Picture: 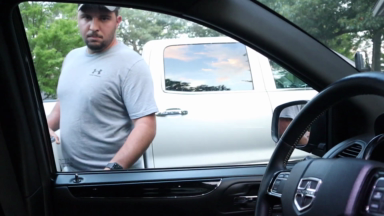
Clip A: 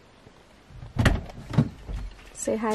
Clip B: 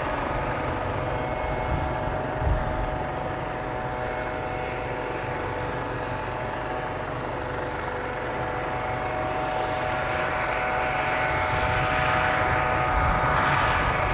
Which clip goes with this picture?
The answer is A